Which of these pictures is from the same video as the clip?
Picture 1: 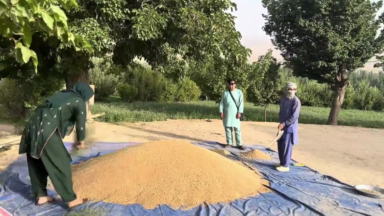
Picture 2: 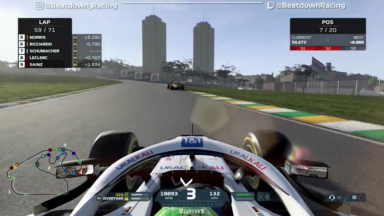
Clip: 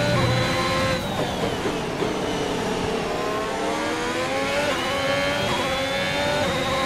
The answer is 2